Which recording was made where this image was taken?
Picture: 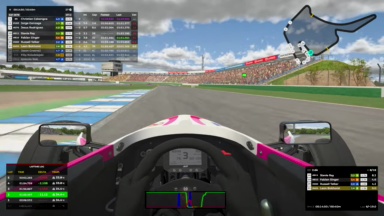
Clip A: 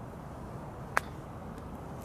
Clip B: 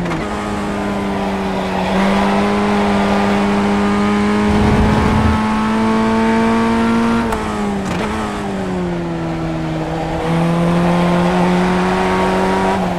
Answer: B